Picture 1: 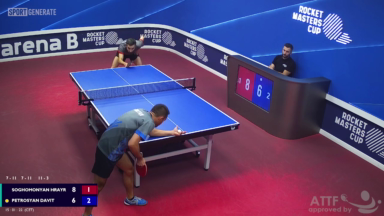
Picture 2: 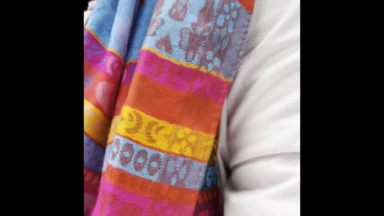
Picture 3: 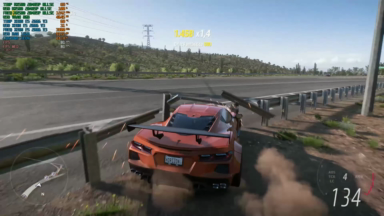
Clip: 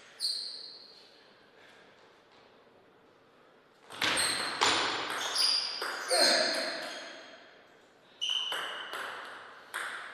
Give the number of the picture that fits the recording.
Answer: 1